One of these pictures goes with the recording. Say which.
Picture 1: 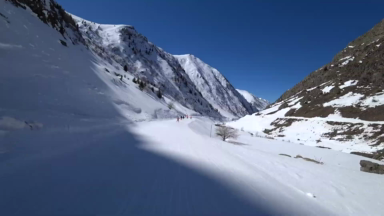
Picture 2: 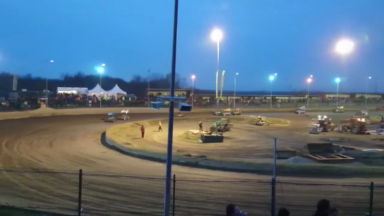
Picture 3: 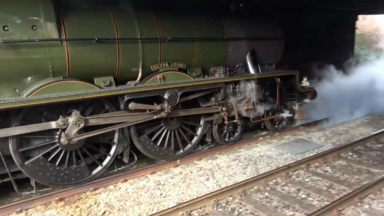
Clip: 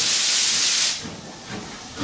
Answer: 3